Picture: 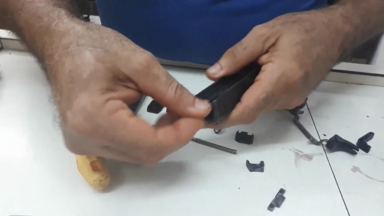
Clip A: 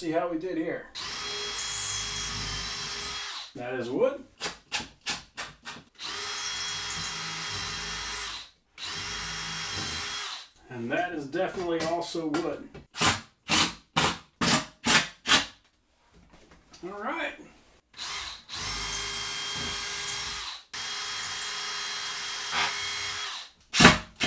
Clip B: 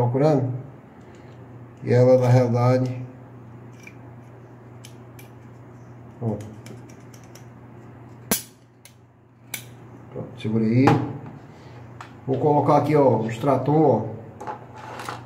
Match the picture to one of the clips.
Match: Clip B